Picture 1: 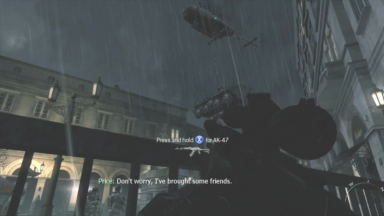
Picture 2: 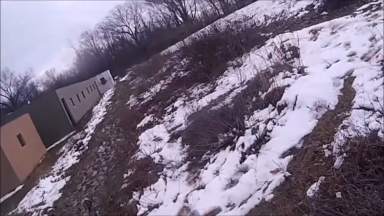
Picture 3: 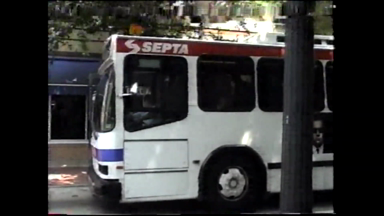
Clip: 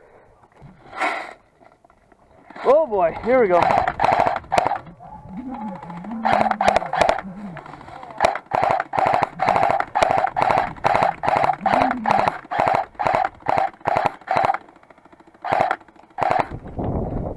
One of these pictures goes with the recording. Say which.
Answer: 2